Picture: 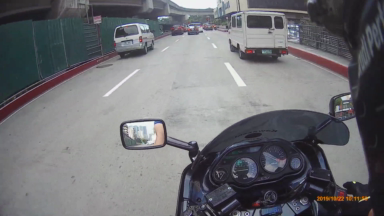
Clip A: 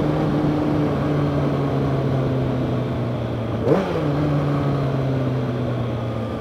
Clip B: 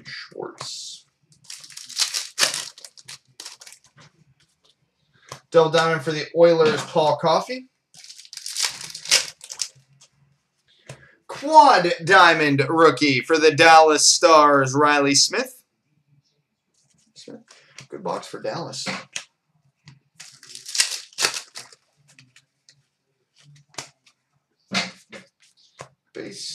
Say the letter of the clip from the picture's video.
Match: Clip A